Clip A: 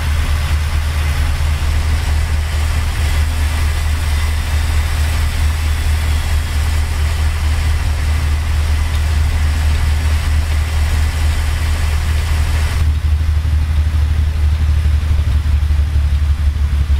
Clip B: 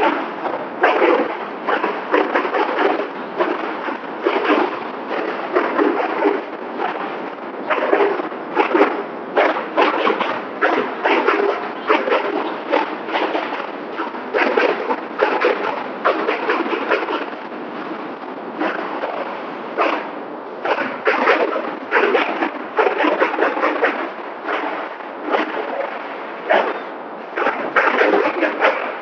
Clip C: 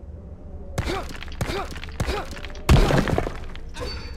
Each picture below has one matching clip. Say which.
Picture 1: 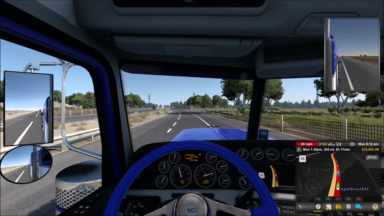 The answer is A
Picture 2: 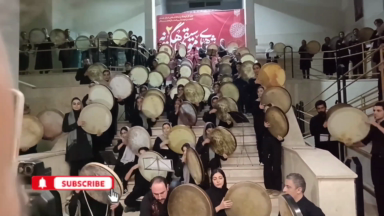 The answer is B